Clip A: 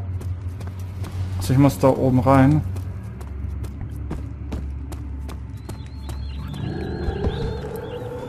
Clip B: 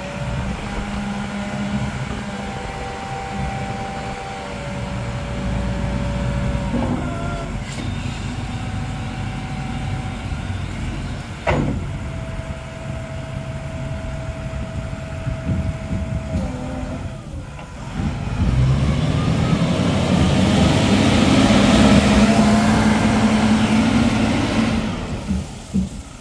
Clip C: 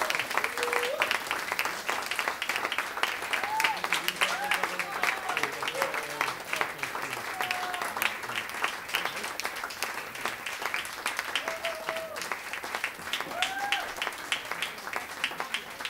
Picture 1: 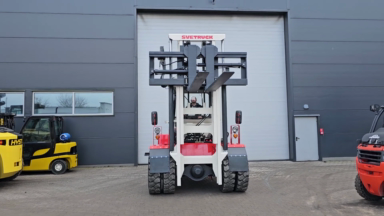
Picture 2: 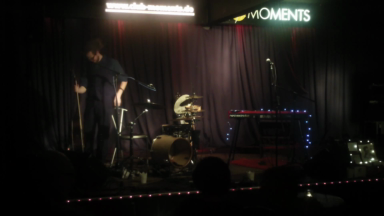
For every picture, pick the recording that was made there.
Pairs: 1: B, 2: C